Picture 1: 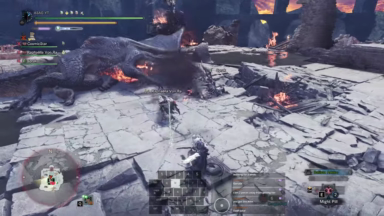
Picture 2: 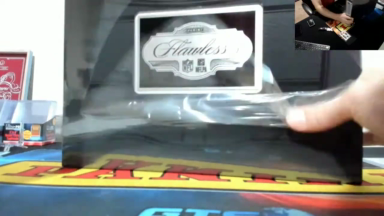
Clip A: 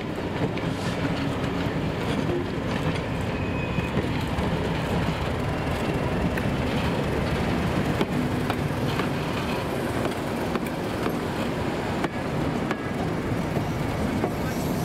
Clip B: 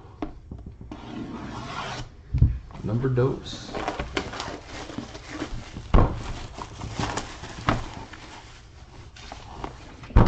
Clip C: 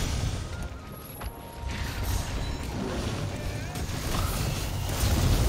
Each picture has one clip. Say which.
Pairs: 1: C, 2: B